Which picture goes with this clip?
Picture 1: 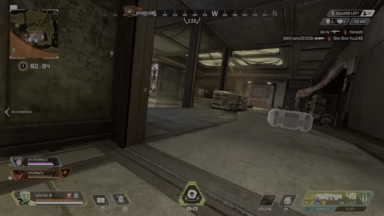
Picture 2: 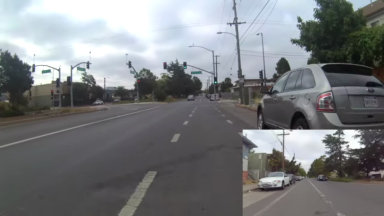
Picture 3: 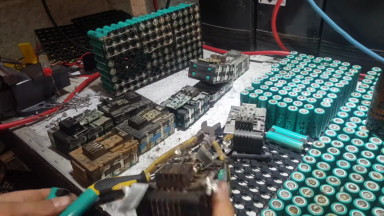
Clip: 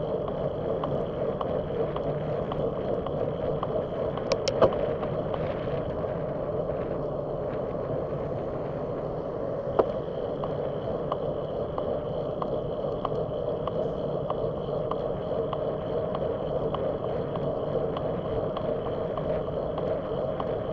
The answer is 2